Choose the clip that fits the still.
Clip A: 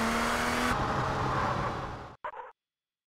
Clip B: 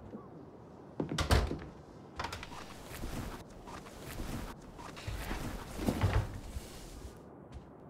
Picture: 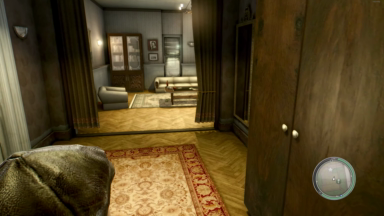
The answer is B